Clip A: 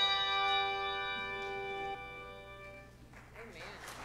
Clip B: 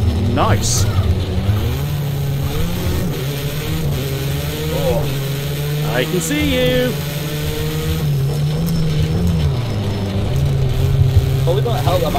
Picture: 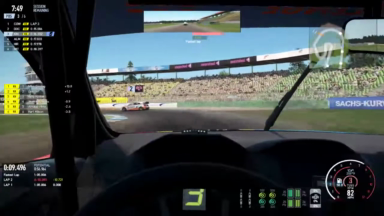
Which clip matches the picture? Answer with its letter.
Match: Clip B